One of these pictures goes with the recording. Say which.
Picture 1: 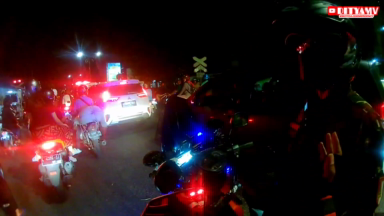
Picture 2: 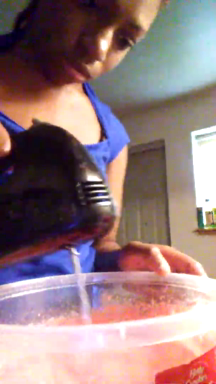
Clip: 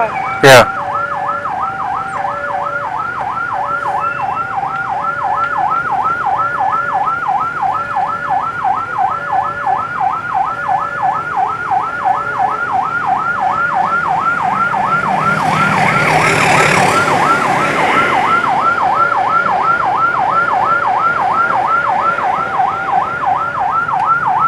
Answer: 1